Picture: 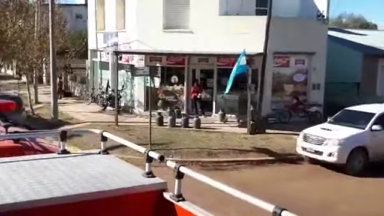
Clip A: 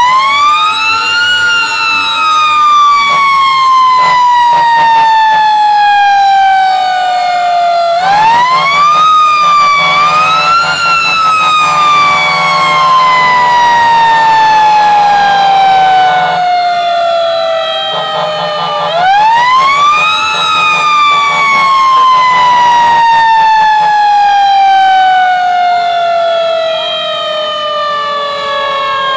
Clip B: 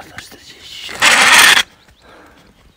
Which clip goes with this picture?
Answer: A